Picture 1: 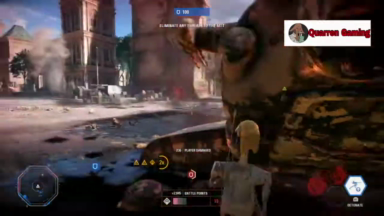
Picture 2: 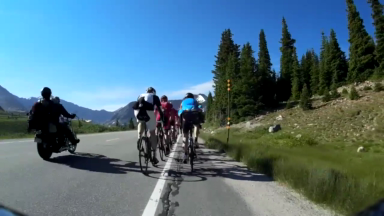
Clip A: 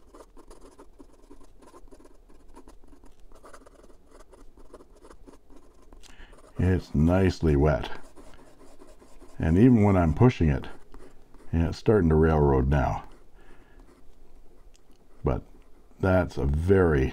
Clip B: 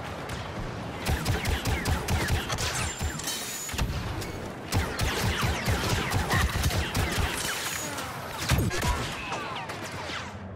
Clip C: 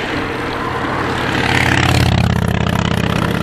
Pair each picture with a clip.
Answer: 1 B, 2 C